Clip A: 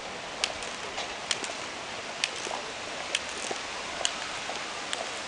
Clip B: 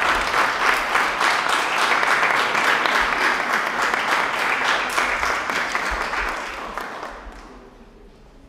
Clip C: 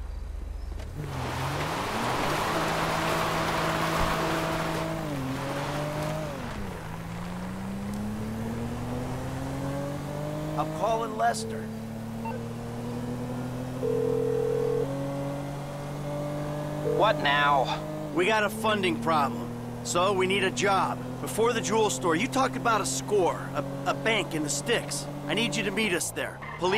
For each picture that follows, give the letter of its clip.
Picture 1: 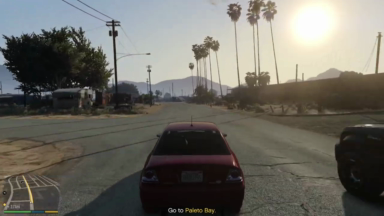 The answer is C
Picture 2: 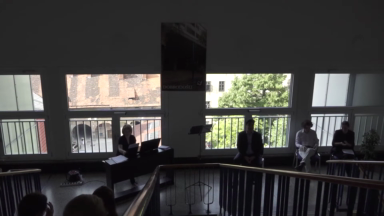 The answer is B